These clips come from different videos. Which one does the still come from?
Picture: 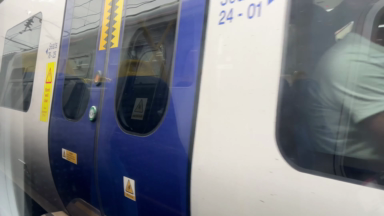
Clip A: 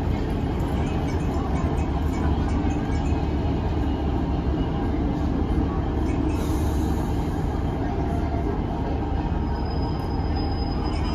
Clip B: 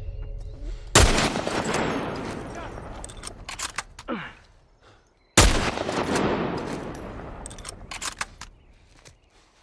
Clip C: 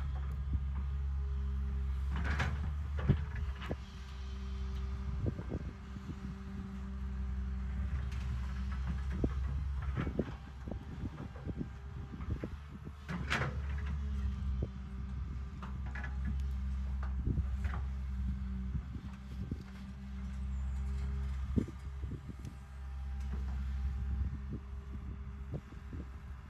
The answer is A